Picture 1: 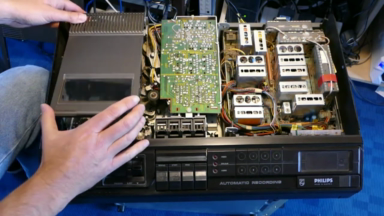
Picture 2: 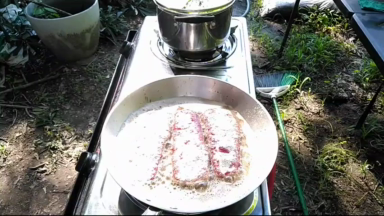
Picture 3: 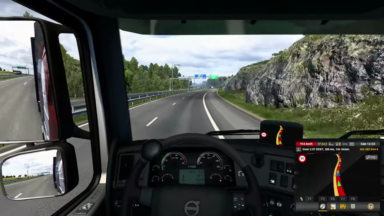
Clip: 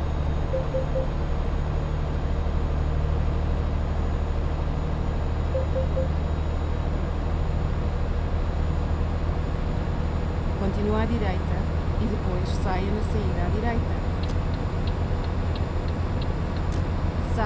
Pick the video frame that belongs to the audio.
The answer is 3